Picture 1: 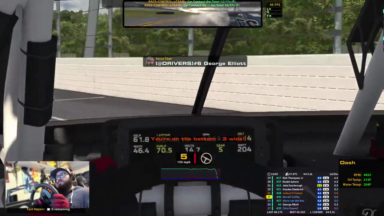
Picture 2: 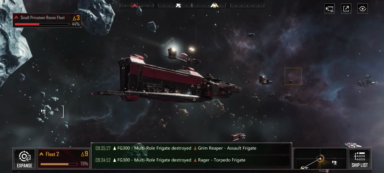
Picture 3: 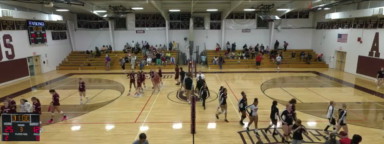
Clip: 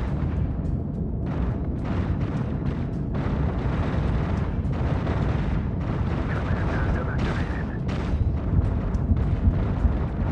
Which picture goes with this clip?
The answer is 2